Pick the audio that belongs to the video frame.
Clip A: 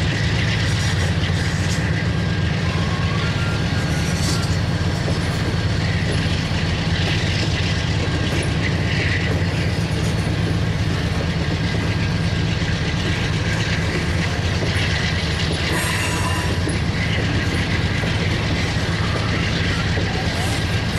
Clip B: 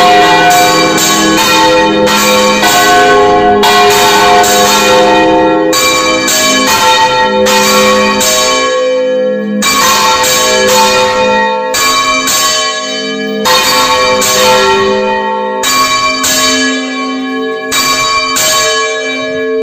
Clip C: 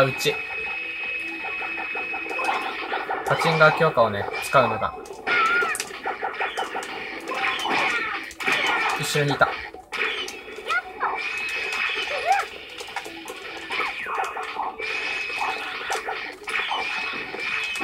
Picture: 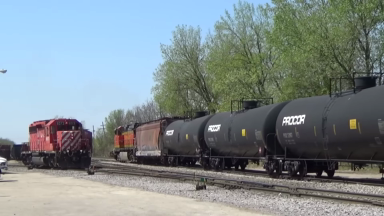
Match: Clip A